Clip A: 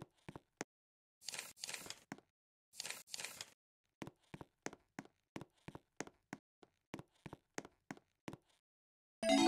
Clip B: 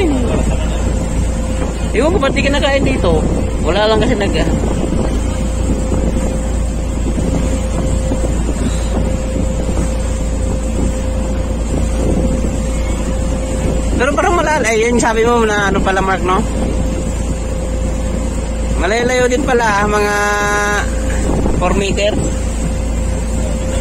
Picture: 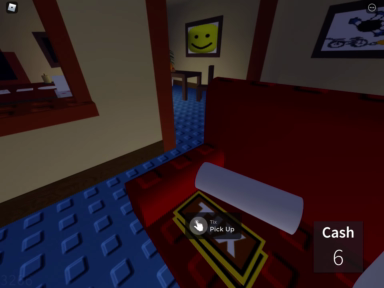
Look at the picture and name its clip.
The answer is A